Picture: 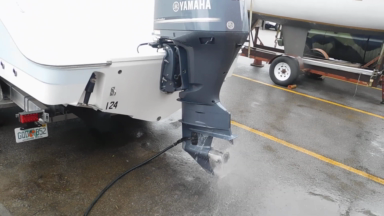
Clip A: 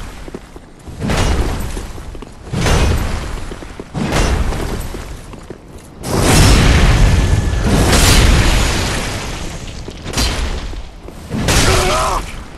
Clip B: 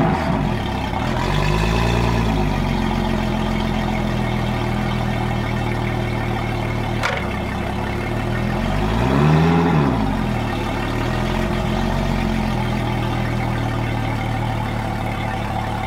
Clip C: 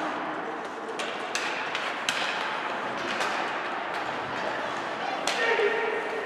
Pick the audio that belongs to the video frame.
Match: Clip B